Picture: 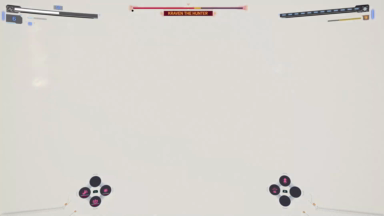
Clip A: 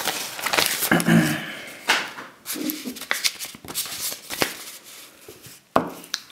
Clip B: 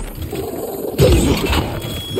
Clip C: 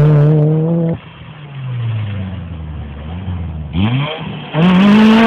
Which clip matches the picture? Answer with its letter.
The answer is B